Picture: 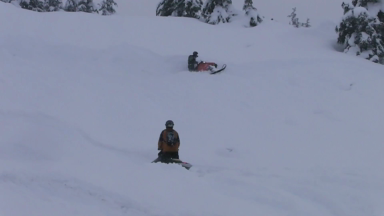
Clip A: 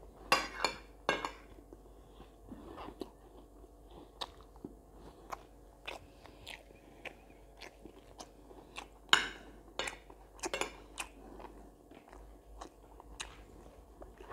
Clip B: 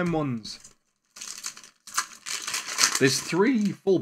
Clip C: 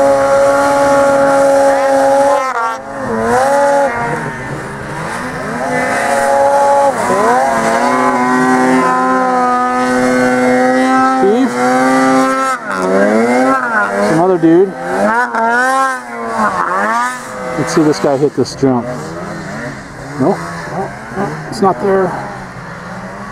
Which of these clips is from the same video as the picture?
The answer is C